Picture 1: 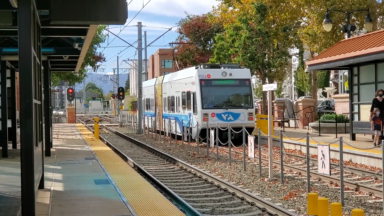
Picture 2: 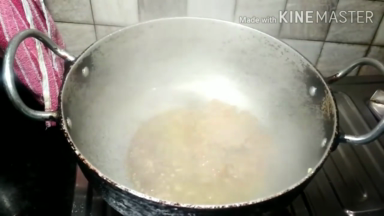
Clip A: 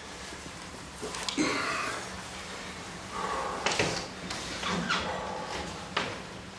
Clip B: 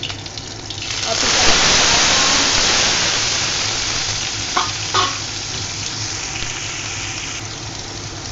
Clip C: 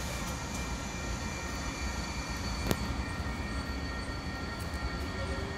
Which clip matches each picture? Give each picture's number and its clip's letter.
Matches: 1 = C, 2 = B